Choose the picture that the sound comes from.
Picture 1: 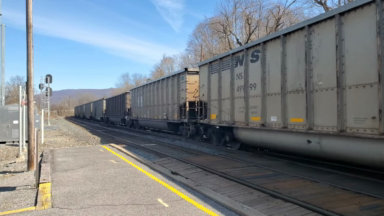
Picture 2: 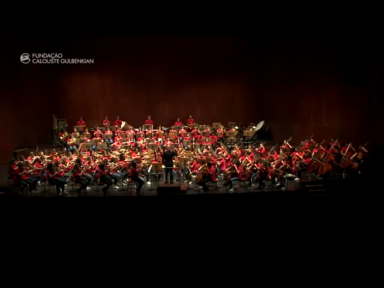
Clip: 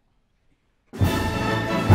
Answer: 2